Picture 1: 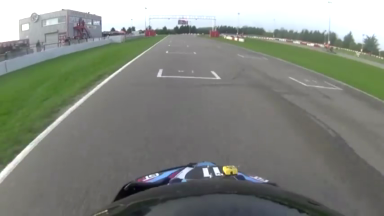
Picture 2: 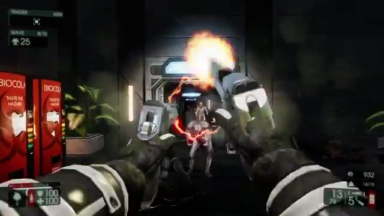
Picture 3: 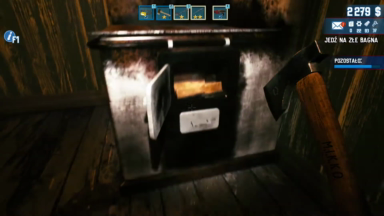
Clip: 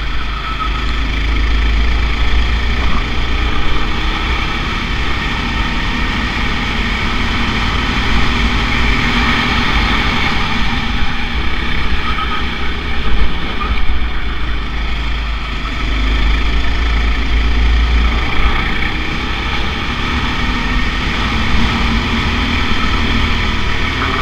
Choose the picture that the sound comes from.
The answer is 1